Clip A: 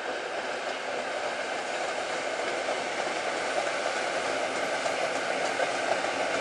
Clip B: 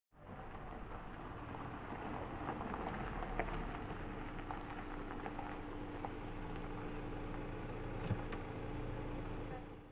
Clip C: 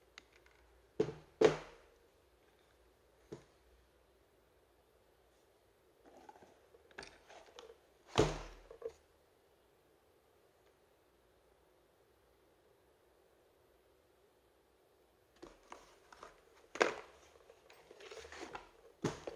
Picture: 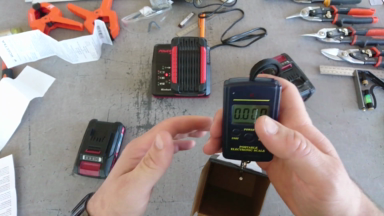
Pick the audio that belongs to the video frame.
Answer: C